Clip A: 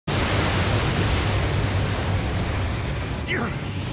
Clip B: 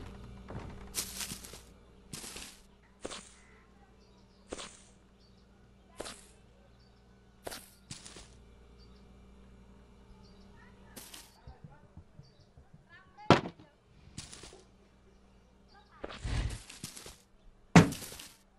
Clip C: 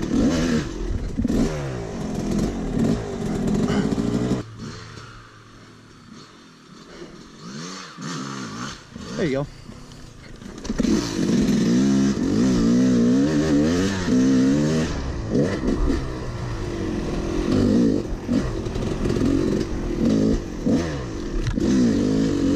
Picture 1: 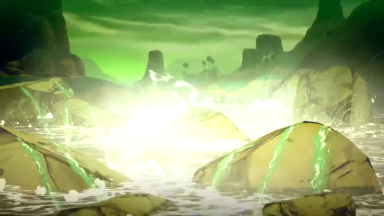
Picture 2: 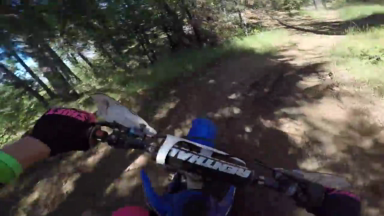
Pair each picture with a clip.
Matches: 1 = A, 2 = C